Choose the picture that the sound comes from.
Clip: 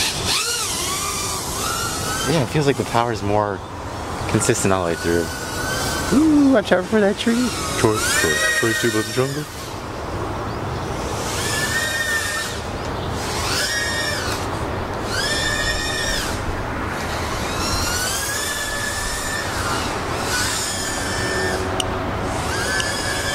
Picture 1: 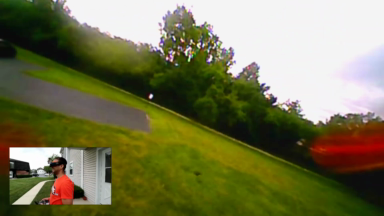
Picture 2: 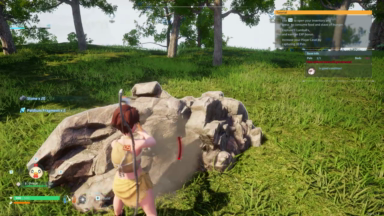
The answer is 1